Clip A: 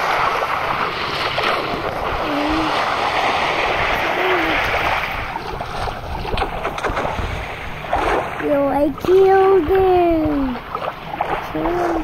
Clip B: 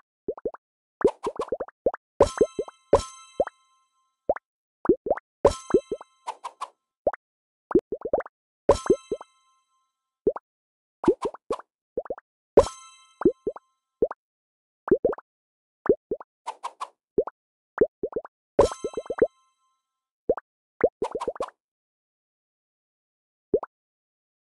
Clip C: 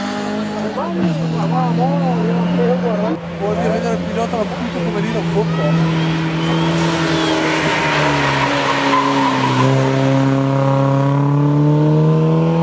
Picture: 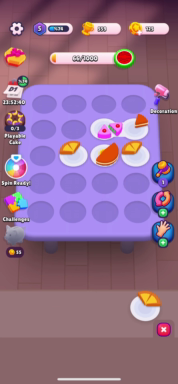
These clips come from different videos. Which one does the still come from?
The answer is B